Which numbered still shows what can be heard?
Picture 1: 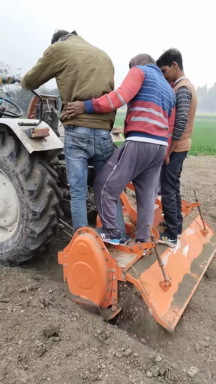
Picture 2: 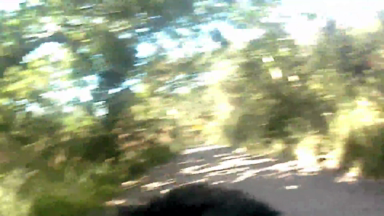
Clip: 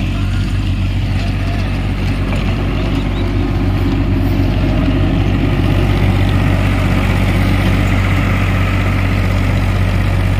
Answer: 1